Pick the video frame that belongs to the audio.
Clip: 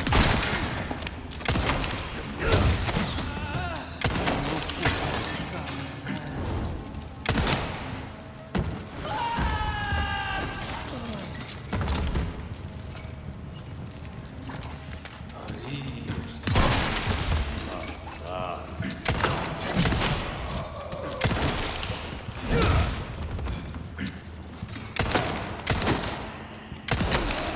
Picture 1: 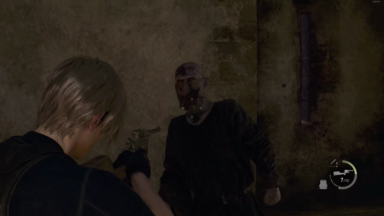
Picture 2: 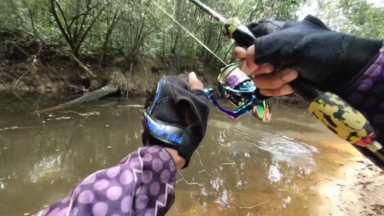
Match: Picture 1